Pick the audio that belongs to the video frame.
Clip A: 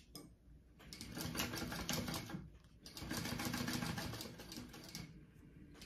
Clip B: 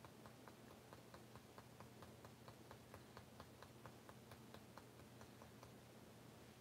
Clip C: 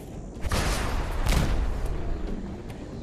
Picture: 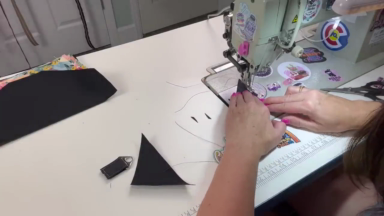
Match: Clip A